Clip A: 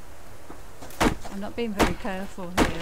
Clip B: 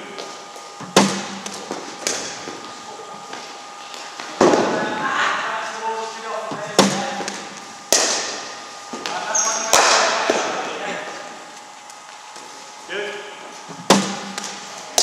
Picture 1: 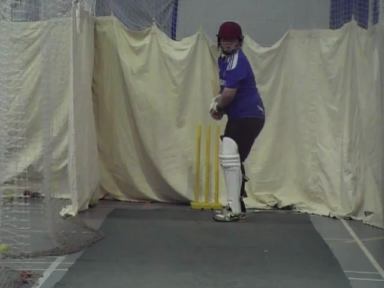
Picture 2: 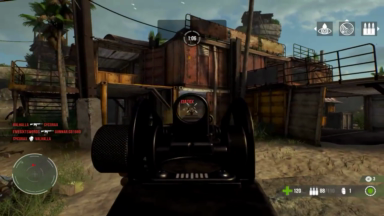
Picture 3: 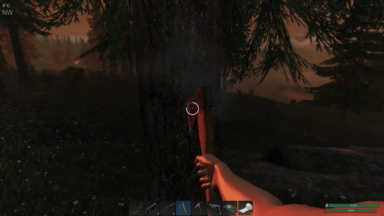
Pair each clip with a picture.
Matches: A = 3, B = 1